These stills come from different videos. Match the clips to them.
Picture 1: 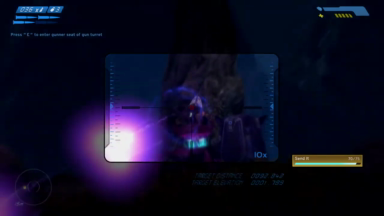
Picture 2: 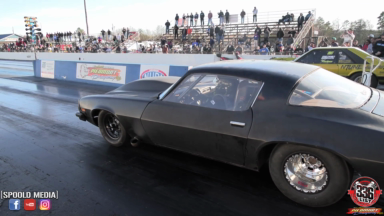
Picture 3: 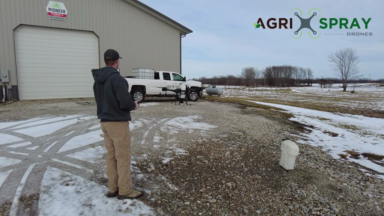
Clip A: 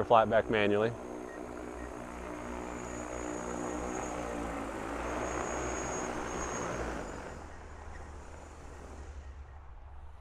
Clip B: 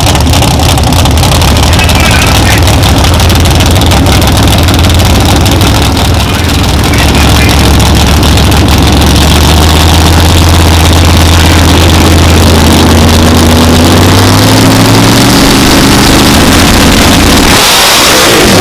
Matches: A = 3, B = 2